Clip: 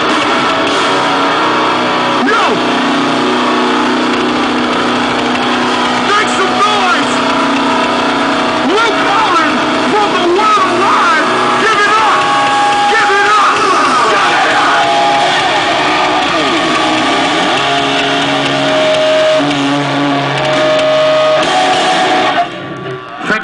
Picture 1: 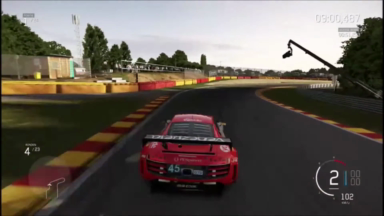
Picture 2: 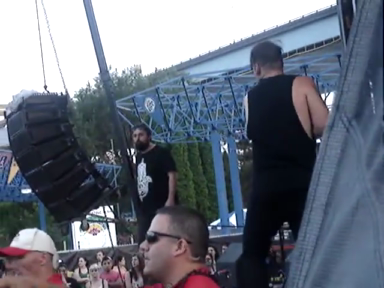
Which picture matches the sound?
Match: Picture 2